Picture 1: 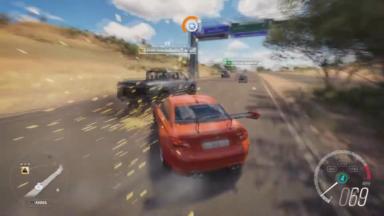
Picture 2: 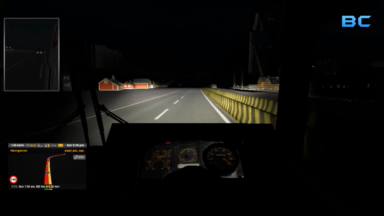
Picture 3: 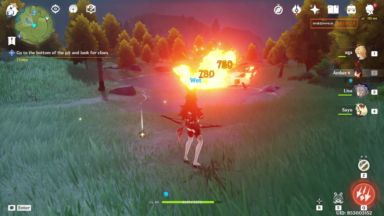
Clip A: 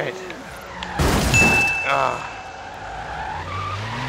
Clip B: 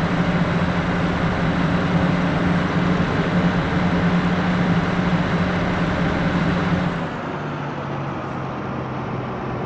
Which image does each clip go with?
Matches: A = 1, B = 2